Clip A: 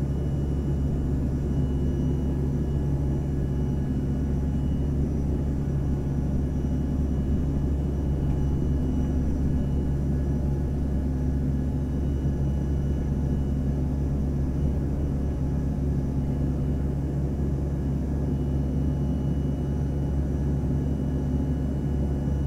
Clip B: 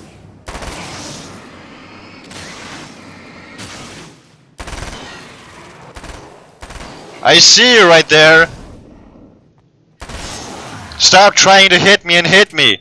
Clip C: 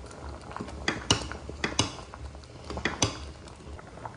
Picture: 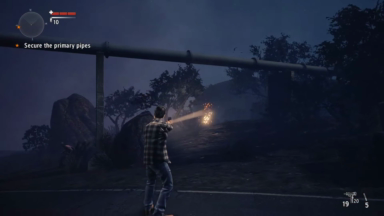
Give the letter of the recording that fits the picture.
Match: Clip B